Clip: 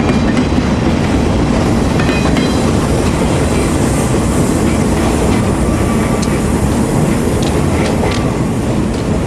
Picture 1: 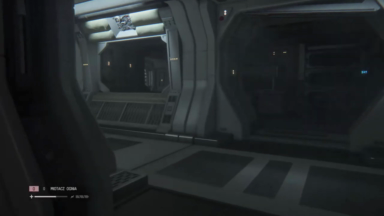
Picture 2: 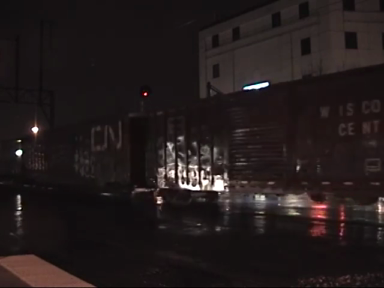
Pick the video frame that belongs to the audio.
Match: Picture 2